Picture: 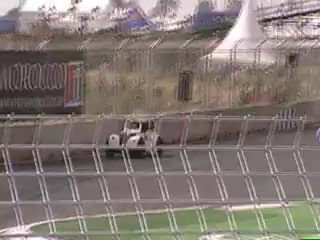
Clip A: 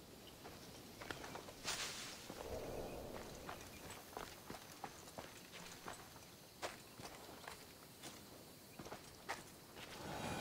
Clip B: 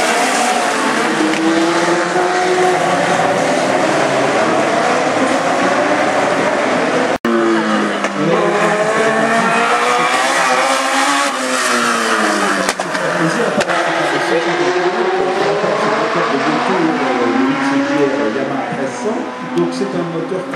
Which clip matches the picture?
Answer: B